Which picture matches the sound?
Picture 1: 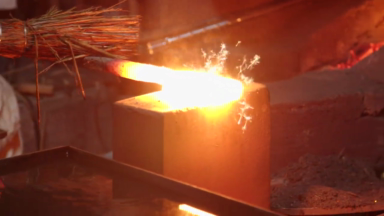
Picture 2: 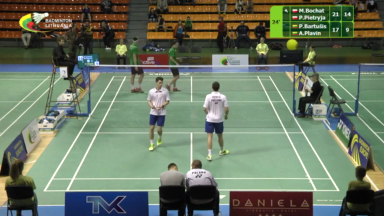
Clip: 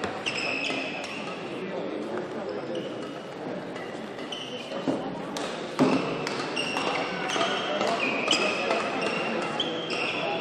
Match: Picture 2